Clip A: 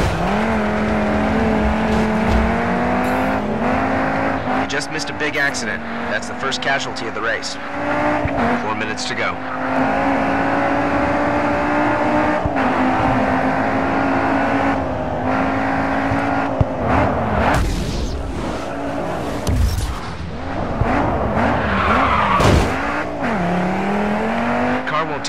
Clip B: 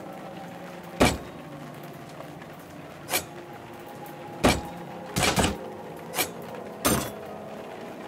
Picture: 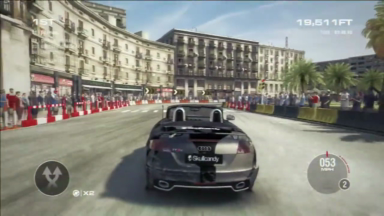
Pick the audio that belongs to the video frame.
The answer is A